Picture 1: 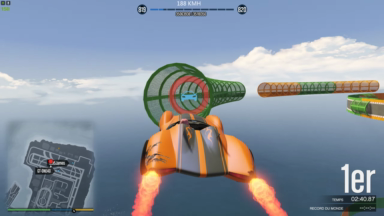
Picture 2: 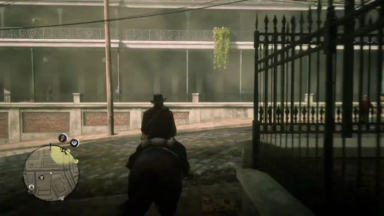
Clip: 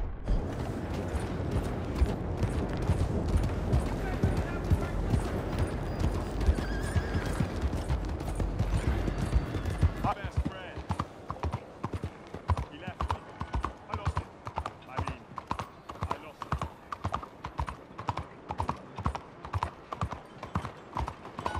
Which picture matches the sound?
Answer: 2